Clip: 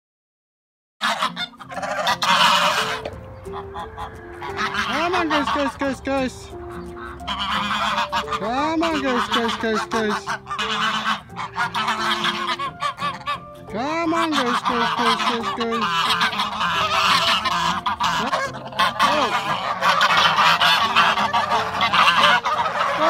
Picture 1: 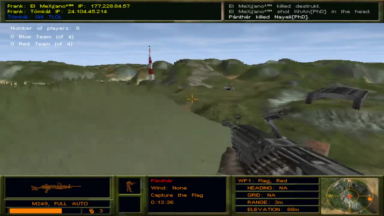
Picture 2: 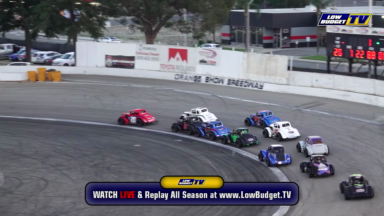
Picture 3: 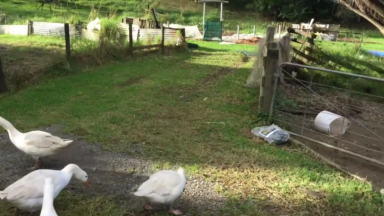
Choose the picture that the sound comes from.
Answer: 3